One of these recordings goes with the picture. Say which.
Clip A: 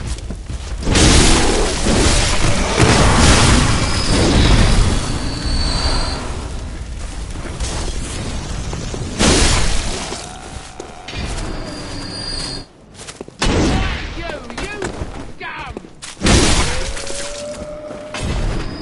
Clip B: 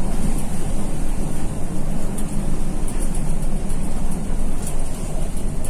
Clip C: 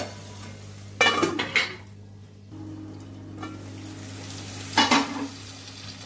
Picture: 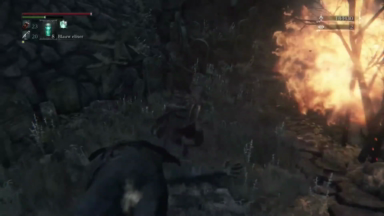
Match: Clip A